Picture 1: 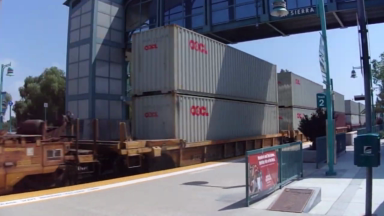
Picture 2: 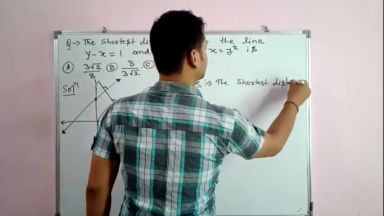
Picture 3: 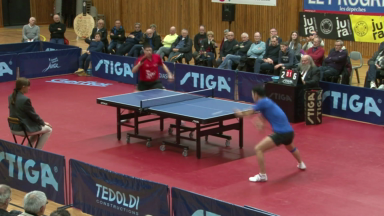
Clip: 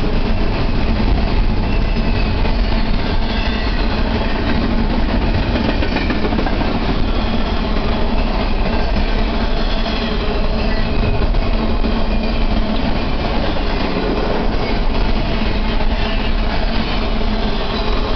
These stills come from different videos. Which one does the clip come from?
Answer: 1